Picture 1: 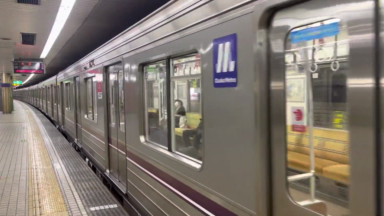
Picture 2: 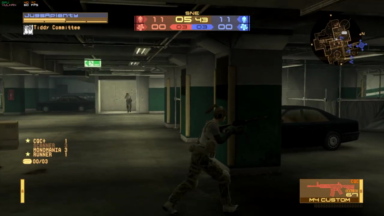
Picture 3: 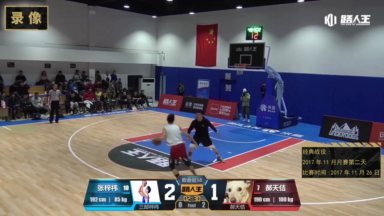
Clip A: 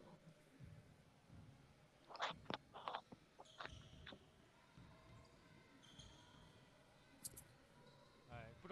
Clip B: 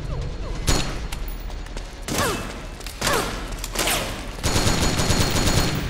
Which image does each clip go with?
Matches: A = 3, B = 2